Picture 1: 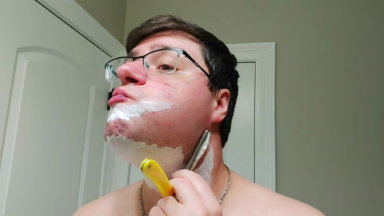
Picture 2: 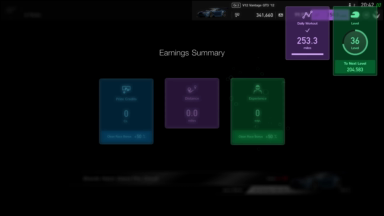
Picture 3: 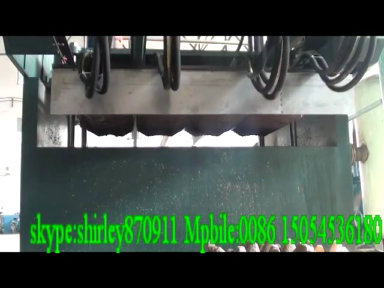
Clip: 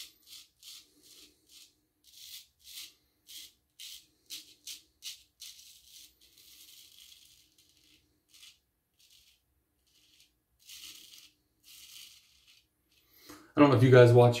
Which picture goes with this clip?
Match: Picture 1